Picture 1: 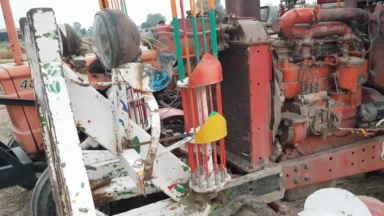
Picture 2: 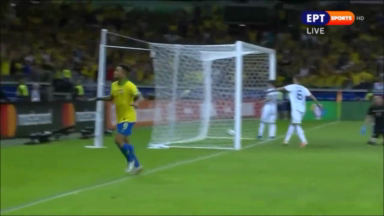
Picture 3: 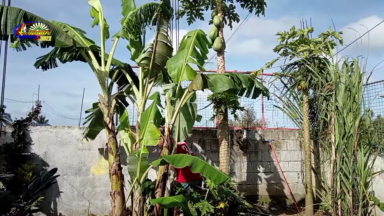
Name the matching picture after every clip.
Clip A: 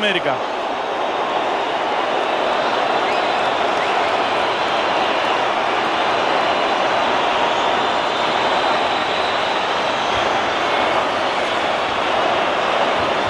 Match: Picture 2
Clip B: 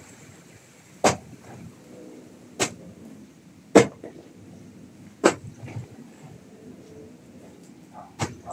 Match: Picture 3